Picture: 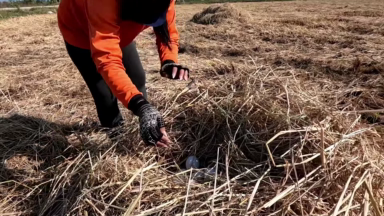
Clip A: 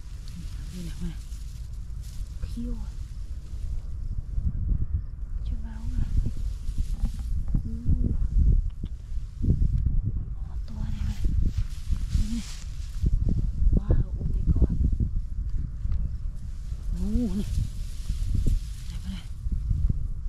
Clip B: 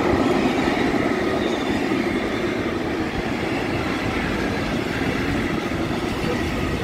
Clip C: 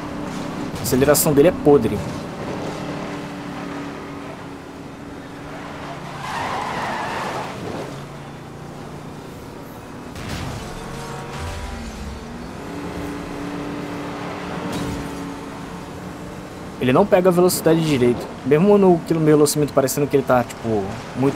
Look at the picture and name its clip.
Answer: A